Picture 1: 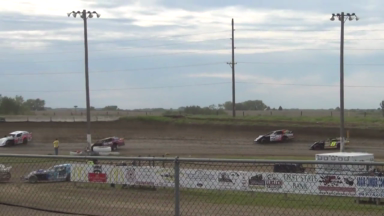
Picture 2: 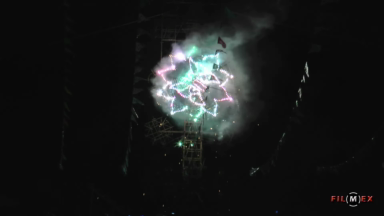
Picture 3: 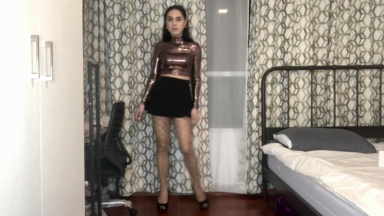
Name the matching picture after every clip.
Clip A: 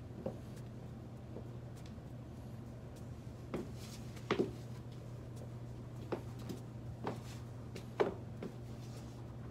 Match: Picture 3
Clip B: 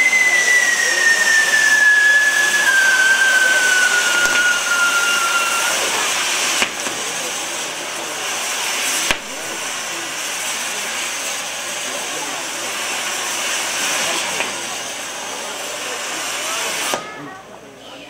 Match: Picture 2